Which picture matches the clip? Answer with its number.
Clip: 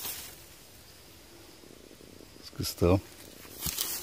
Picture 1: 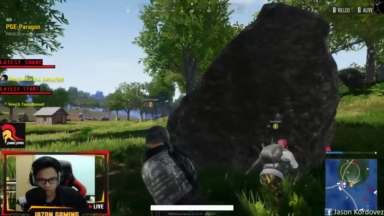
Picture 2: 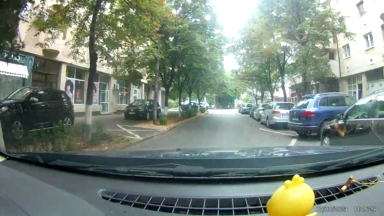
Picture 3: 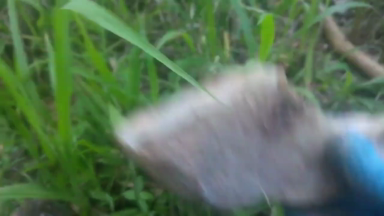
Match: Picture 3